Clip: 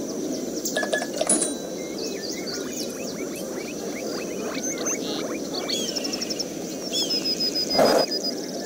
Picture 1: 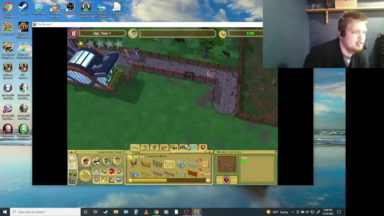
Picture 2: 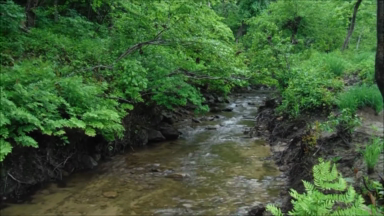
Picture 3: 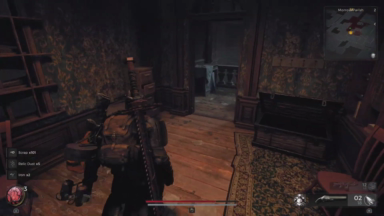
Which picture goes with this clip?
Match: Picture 1